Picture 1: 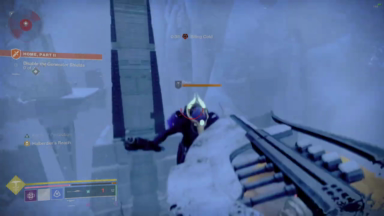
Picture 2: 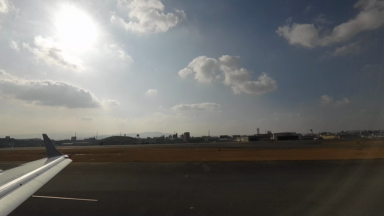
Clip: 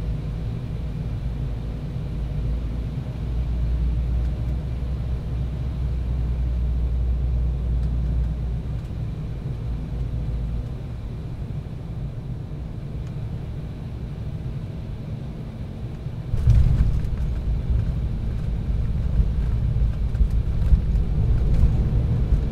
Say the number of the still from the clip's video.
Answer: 2